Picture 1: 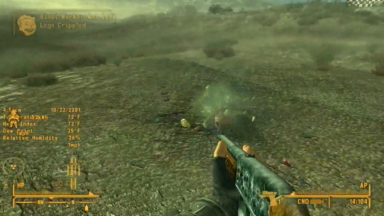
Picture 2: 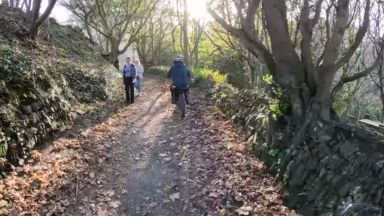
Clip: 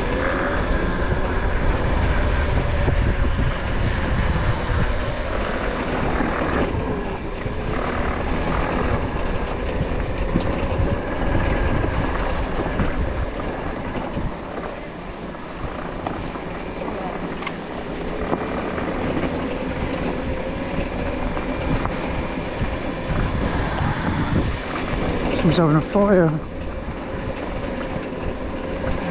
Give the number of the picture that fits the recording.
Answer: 2